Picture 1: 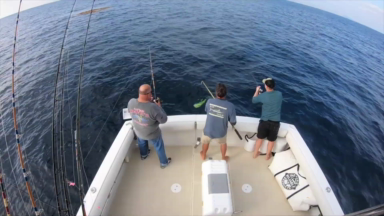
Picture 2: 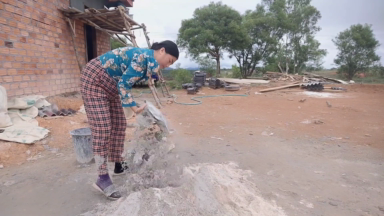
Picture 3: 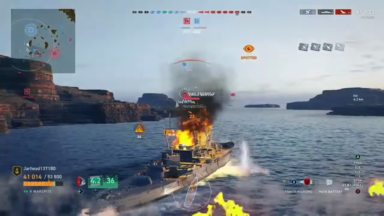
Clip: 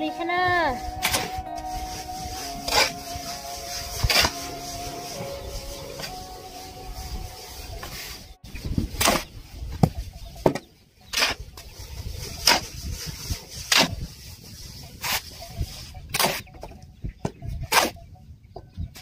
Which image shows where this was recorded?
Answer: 2